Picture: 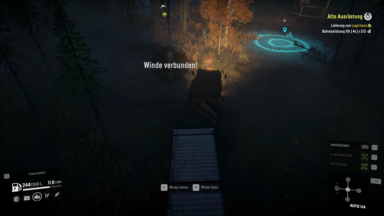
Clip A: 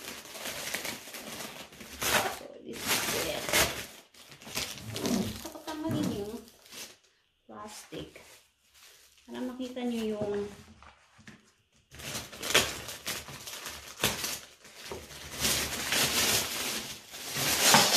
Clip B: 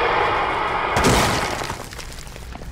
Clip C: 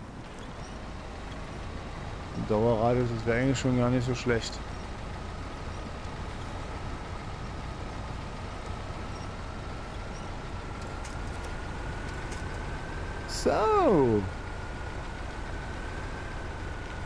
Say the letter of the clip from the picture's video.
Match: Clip C